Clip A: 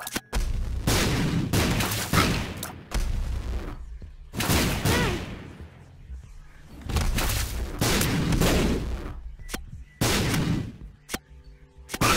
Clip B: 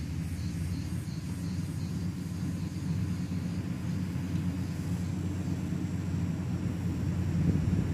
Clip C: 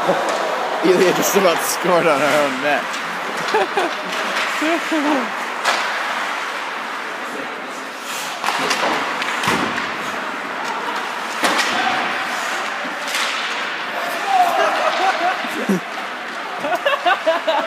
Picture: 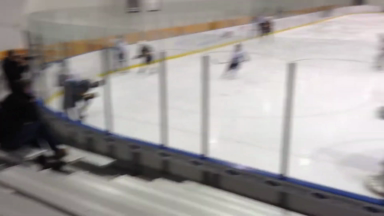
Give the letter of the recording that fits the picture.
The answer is C